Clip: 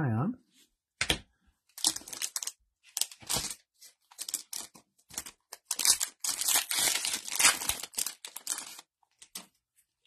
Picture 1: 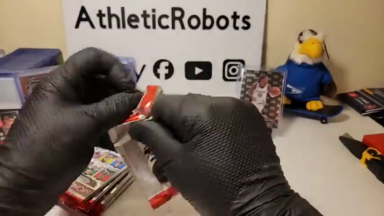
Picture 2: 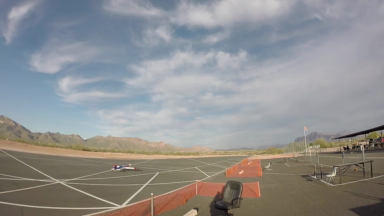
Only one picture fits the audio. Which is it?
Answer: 1